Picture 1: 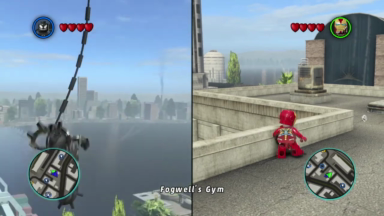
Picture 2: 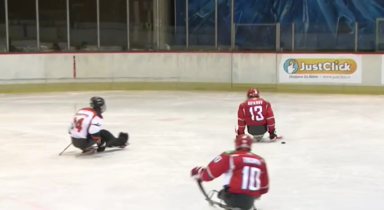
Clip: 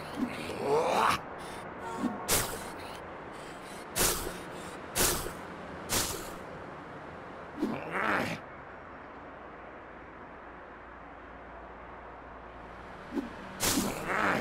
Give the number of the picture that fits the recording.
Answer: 1